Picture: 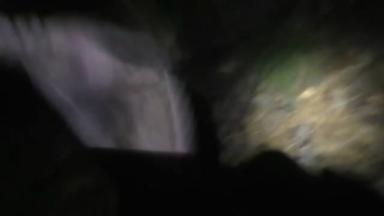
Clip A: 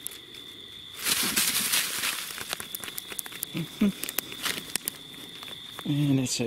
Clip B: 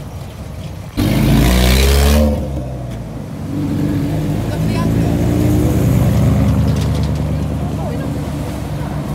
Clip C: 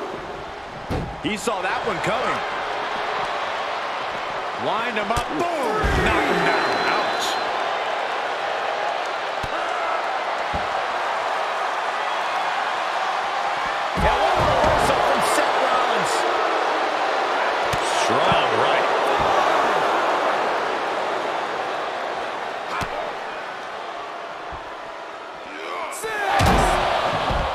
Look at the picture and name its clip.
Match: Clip A